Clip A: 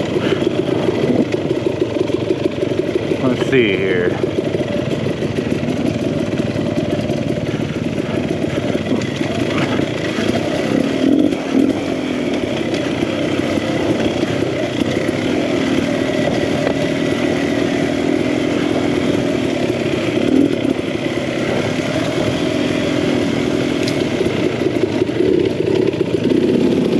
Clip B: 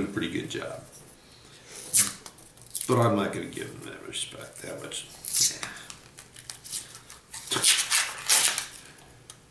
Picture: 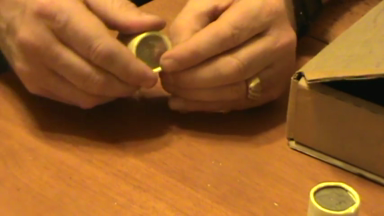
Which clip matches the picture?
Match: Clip B